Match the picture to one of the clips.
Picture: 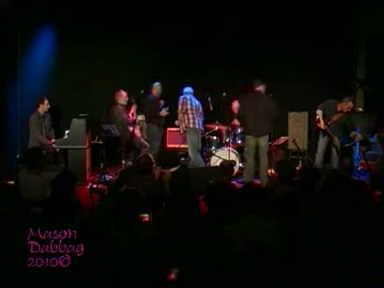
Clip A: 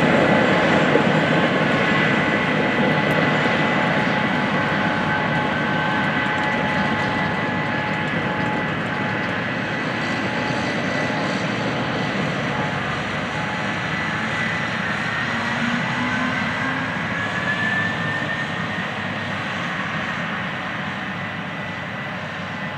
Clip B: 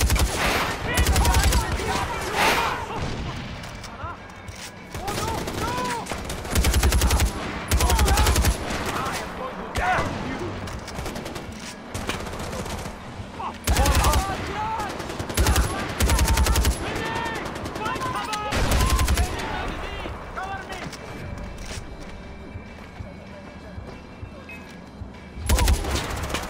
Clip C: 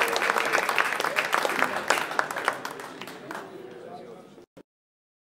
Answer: C